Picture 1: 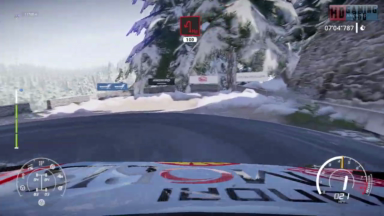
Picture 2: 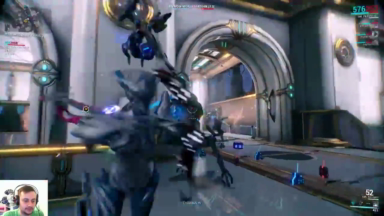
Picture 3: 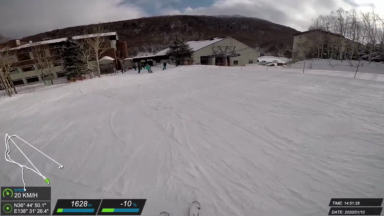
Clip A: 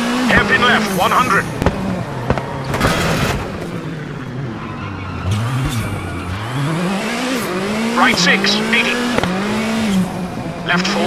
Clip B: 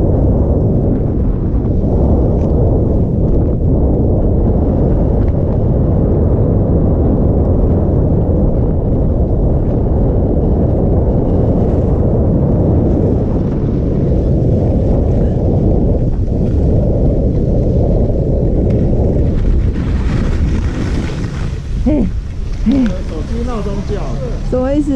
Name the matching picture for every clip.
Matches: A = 1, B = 3